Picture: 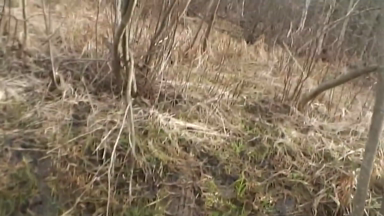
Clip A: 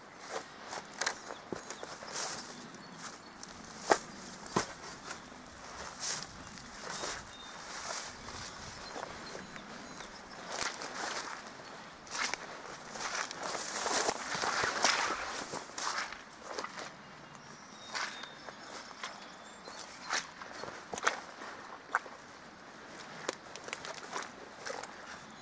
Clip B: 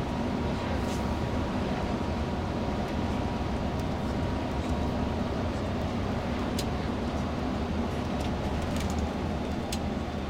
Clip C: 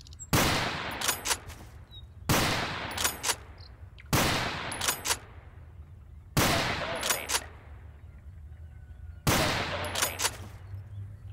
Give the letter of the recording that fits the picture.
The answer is A